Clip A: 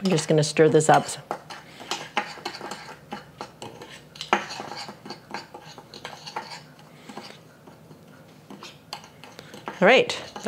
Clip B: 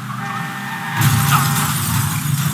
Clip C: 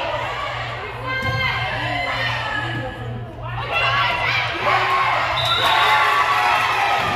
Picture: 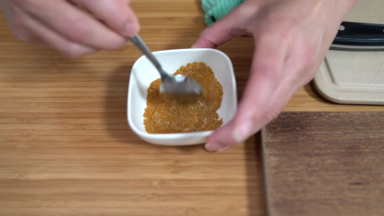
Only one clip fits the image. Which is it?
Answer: A